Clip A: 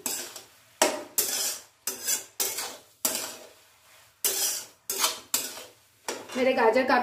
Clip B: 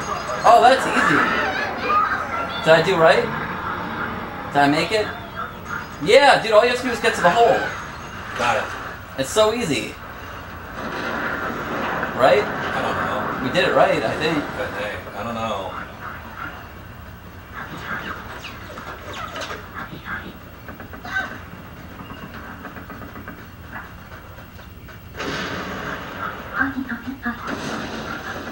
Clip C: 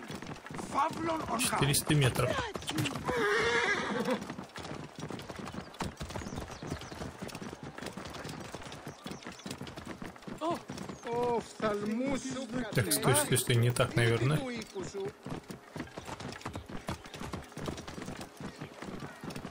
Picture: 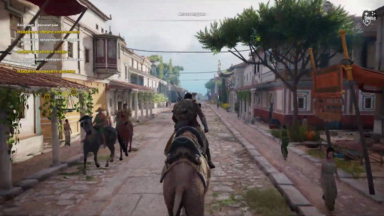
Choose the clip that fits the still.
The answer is C